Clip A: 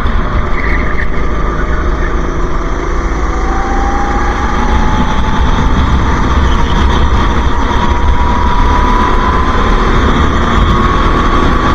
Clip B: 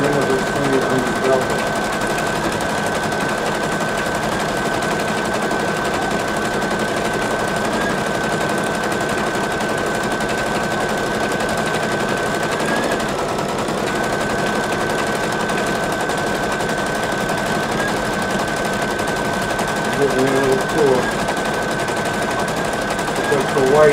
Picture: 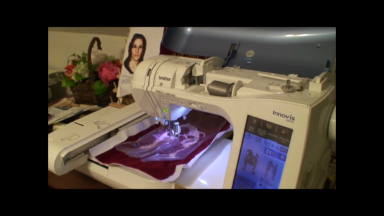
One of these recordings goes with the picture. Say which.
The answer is B